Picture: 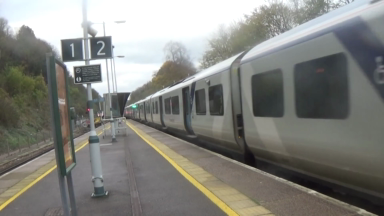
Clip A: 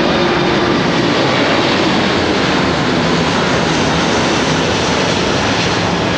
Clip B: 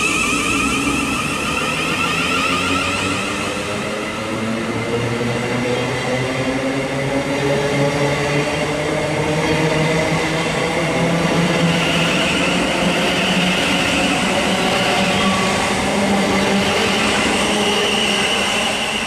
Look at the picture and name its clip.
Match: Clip B